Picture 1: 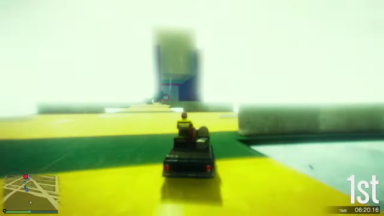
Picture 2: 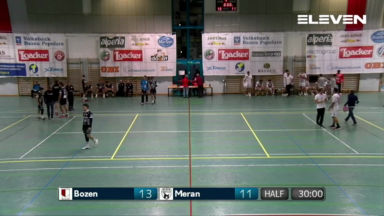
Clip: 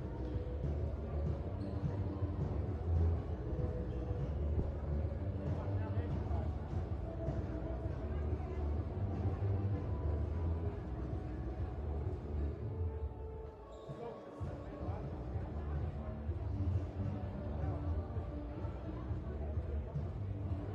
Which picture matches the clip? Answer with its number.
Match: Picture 2